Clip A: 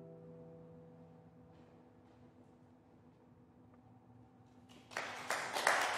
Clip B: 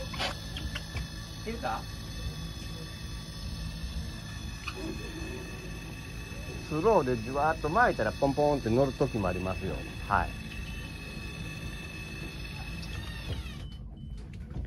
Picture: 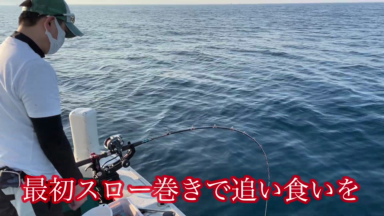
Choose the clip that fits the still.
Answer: B